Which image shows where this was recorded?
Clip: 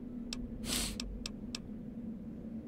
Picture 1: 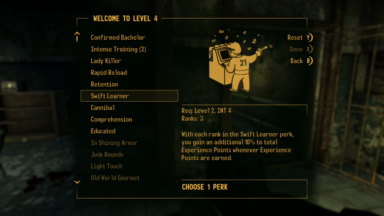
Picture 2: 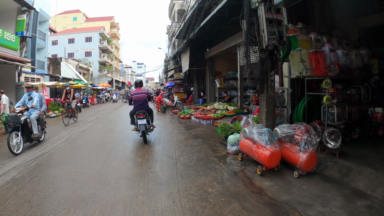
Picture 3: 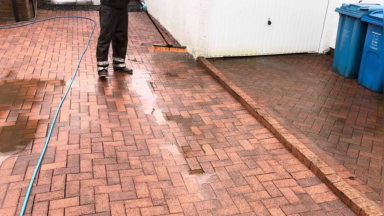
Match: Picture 1